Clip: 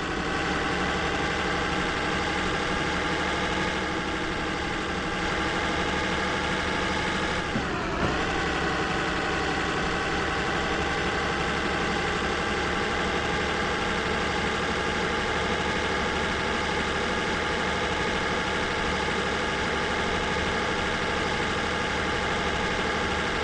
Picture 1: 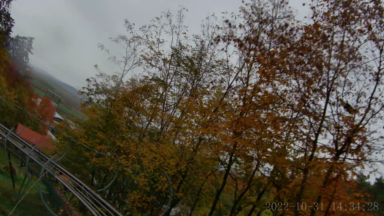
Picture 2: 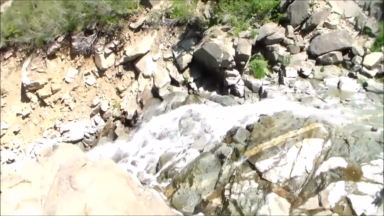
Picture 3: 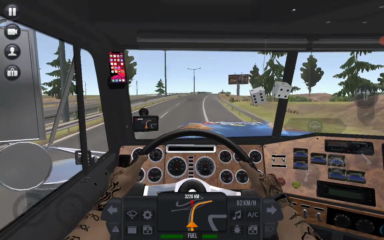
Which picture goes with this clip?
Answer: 3